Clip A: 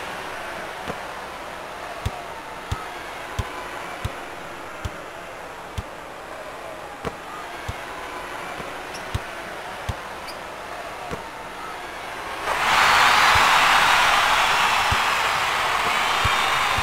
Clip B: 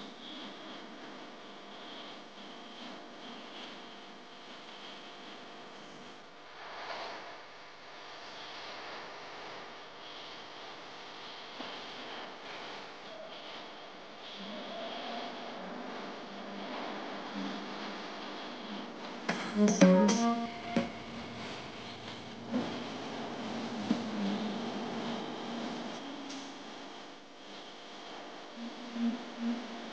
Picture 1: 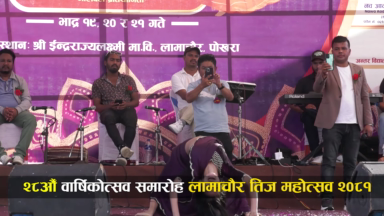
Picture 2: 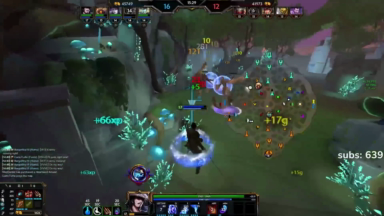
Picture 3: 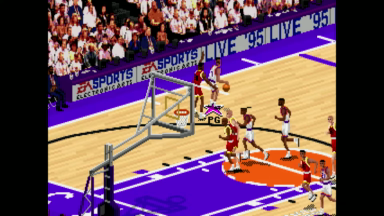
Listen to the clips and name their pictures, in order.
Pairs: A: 3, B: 1